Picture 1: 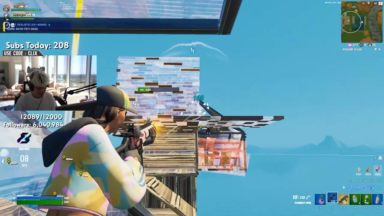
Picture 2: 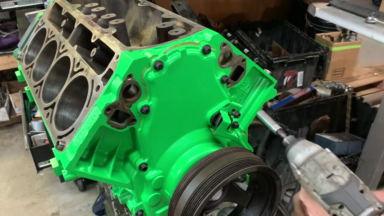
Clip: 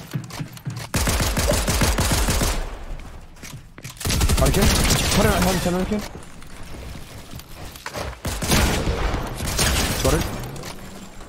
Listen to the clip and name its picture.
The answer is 1